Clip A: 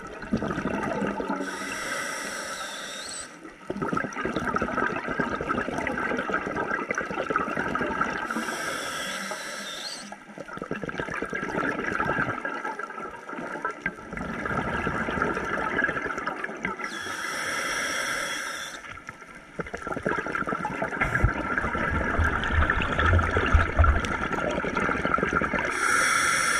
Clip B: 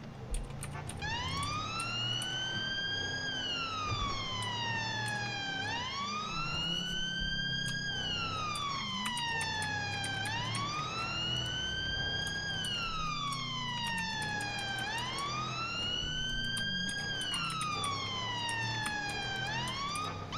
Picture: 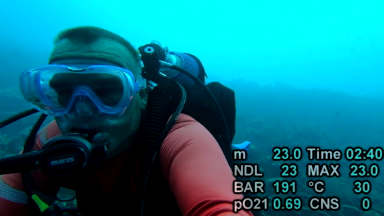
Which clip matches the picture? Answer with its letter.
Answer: A